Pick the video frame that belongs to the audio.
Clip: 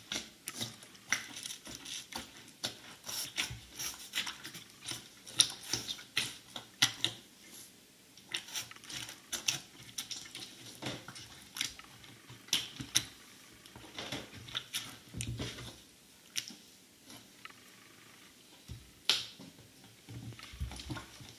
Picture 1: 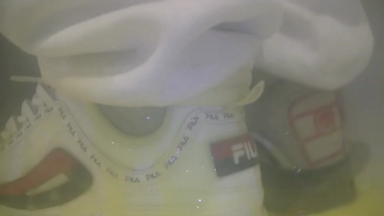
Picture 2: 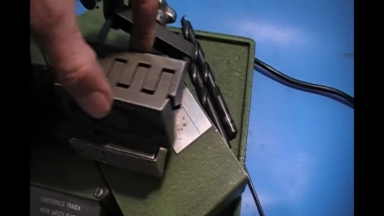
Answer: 1